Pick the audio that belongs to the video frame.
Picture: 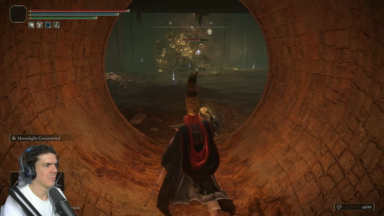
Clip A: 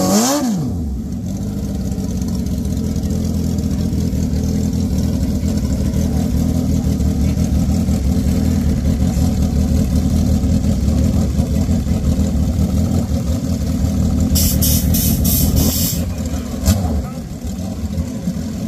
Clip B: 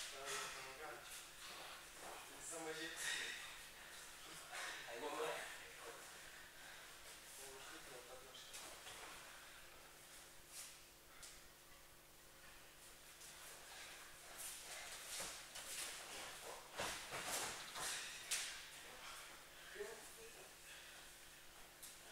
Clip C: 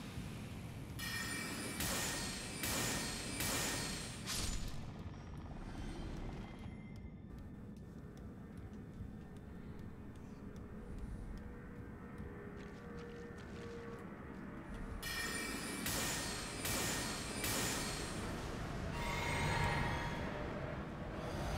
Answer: C